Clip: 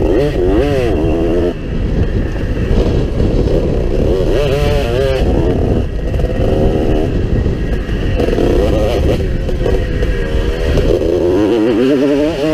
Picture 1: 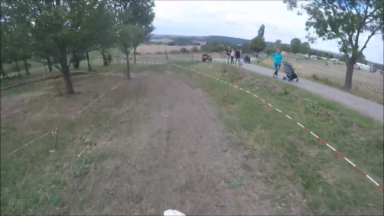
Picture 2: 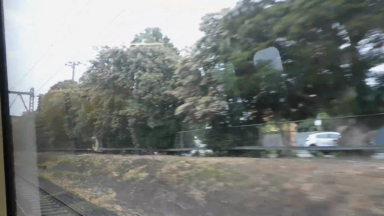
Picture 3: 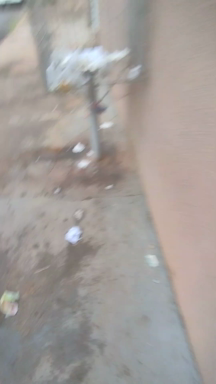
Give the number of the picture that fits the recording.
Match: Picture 1